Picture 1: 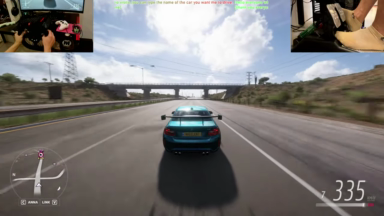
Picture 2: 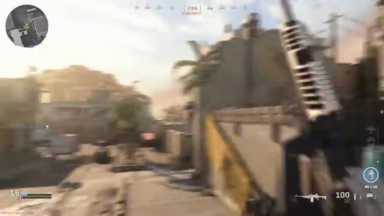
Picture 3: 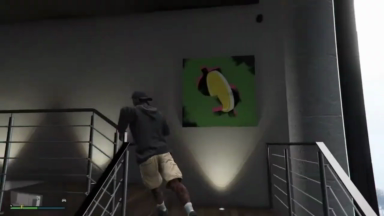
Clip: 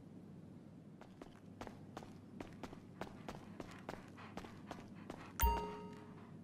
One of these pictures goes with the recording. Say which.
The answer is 3